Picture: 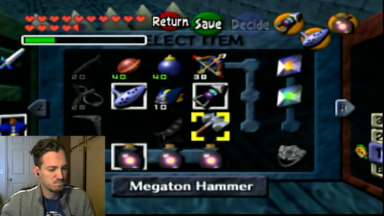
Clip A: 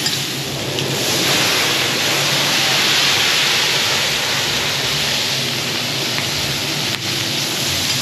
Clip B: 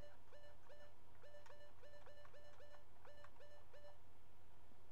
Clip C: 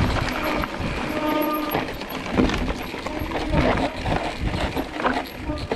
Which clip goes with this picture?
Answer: B